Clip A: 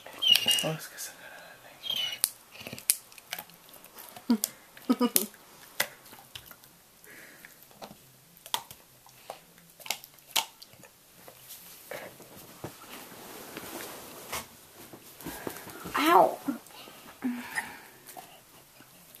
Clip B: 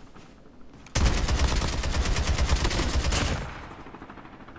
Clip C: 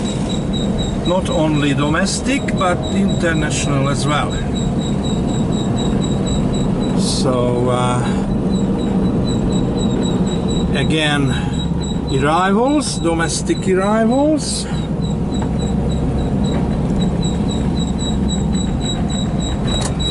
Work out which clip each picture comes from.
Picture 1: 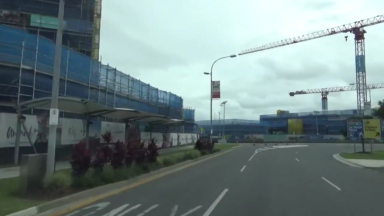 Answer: C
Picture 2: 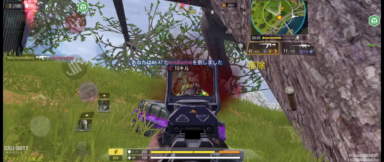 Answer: B